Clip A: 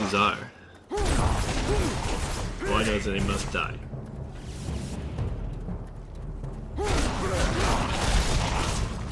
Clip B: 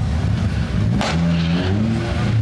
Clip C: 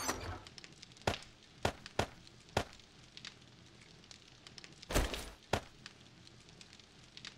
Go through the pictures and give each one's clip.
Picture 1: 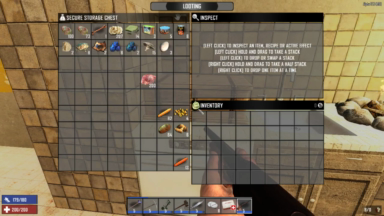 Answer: C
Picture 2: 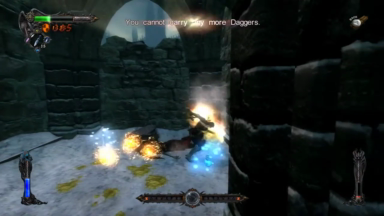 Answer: A